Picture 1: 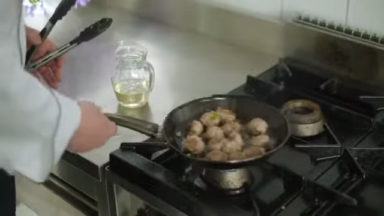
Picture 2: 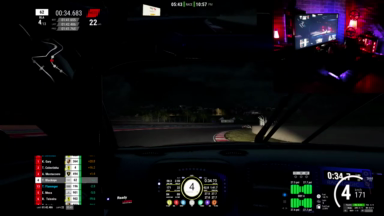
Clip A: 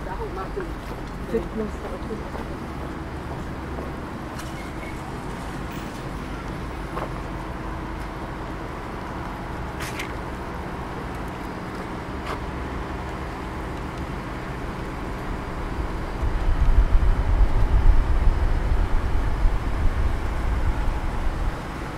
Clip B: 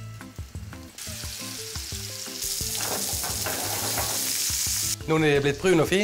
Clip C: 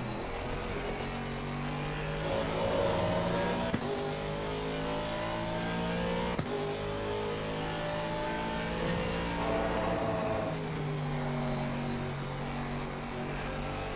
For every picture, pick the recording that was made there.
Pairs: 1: B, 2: C